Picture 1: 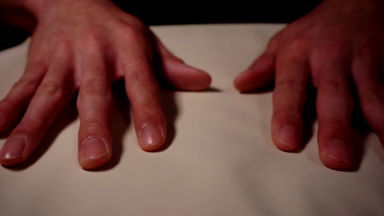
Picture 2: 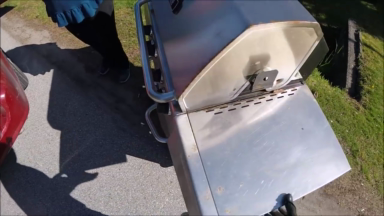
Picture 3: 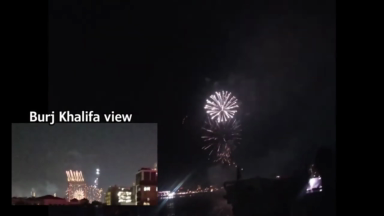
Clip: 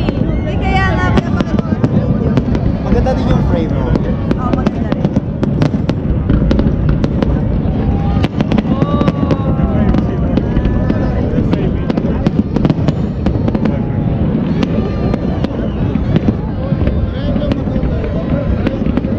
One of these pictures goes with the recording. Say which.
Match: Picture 3